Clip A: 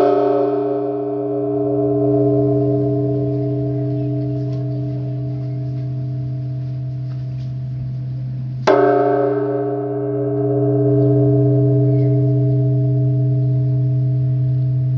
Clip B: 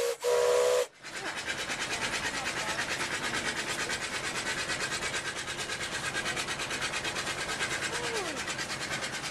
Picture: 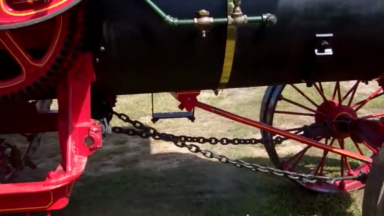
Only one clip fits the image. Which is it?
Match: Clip B